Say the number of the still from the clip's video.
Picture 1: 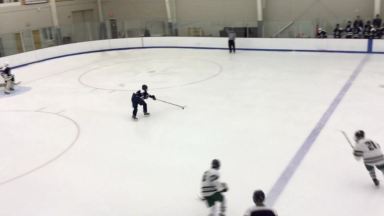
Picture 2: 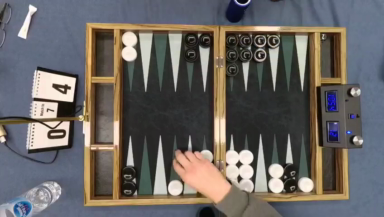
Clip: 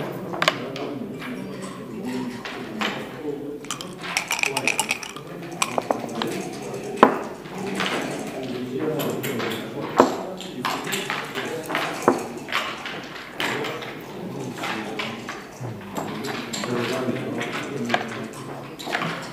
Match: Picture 2